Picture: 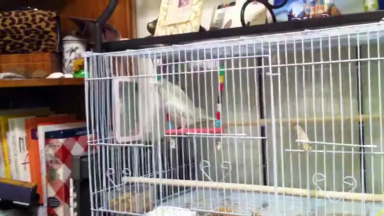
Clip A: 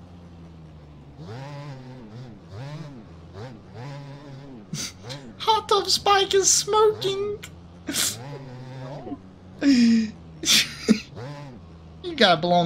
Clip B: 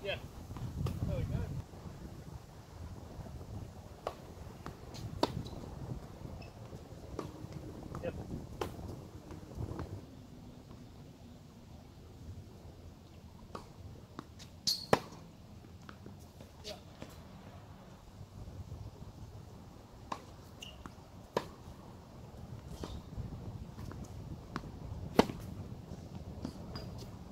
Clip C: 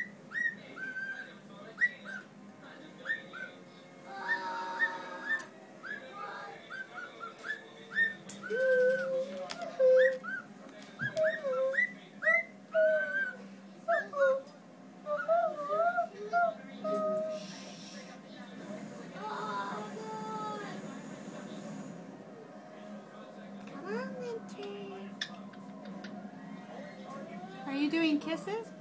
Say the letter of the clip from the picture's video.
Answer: C